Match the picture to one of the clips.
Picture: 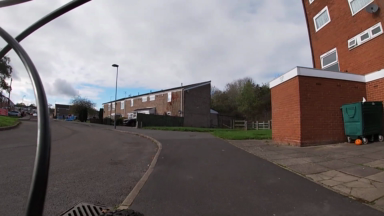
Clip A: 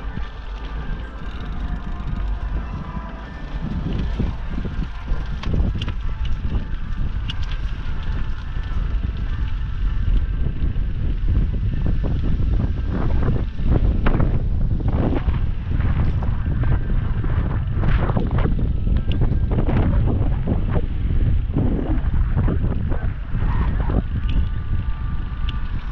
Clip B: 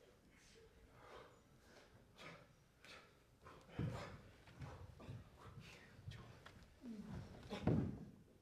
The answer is A